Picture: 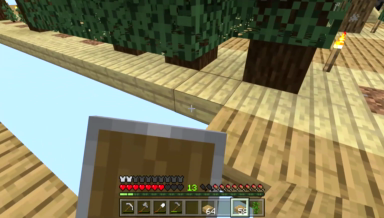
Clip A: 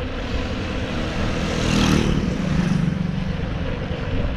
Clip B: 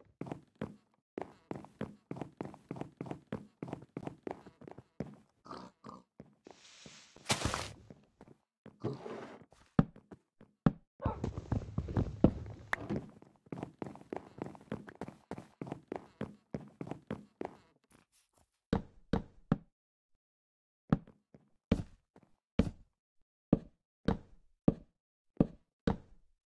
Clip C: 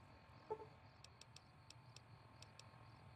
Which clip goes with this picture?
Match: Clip B